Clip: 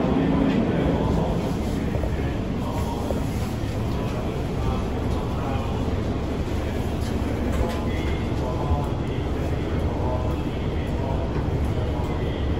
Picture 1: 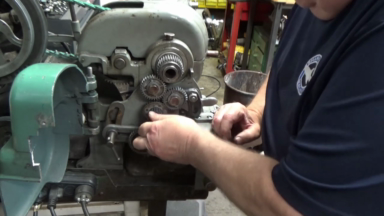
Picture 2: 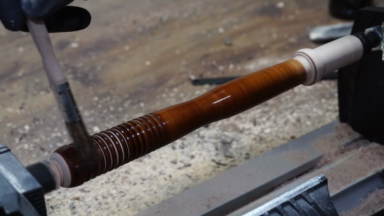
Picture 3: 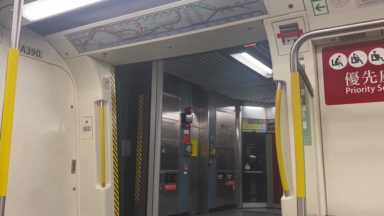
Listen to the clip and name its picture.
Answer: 3